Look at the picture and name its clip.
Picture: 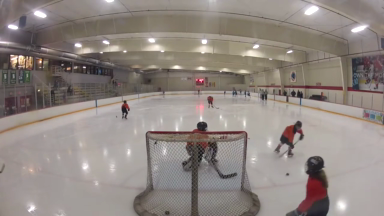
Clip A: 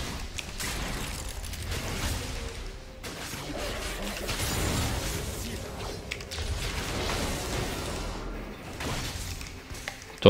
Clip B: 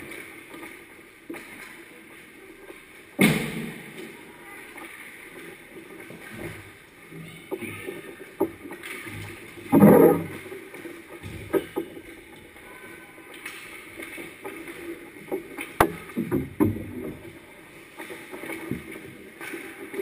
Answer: B